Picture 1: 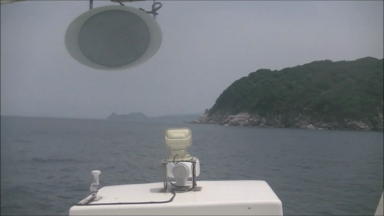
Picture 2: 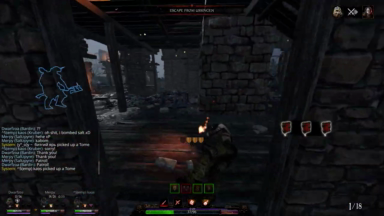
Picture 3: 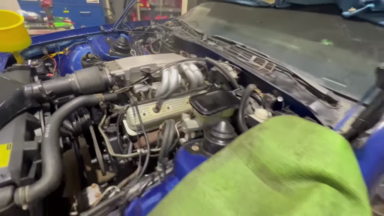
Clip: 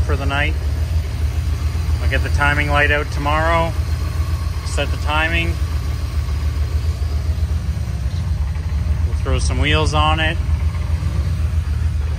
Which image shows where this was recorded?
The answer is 3